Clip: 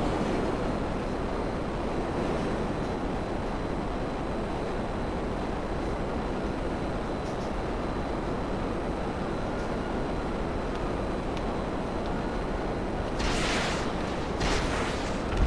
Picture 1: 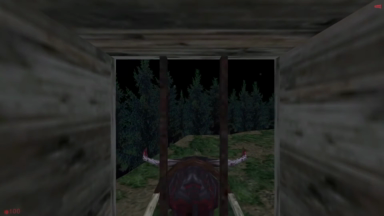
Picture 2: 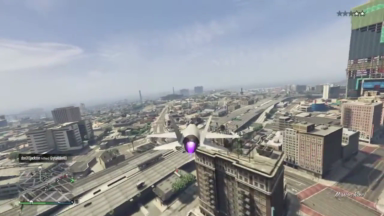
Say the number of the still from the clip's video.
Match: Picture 2